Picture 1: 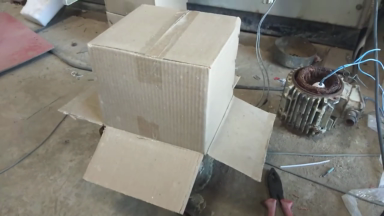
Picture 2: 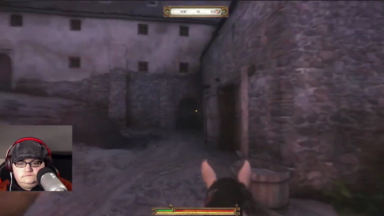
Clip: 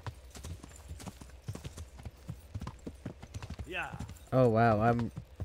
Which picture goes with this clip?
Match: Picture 2